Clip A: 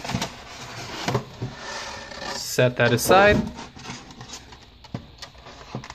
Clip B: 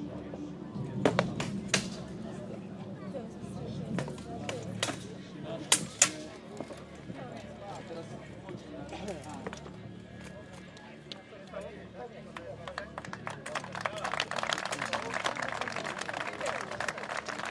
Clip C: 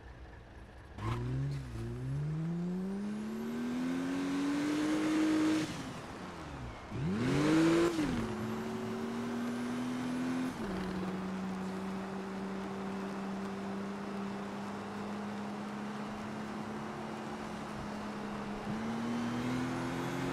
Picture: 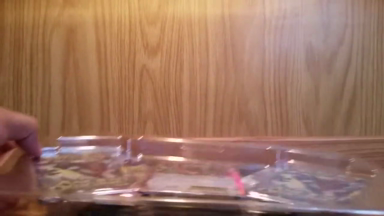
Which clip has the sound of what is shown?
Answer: A